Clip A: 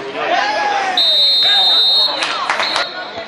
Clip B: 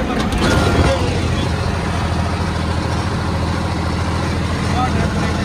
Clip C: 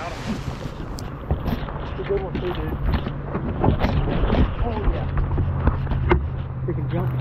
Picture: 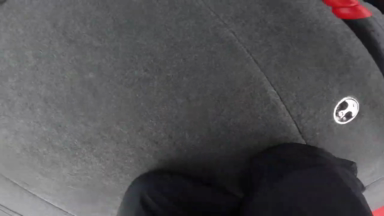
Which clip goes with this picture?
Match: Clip C